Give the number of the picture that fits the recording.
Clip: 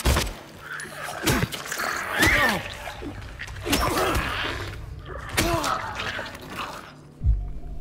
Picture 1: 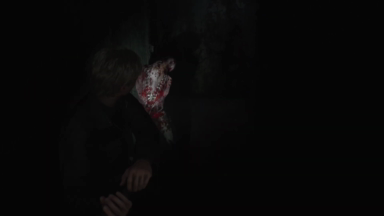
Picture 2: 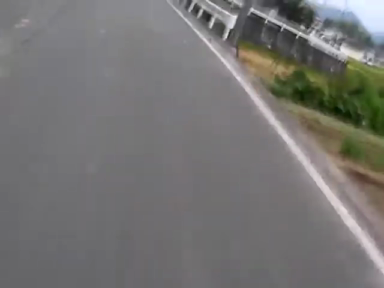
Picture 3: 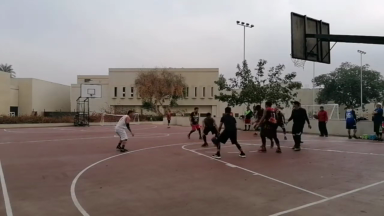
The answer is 1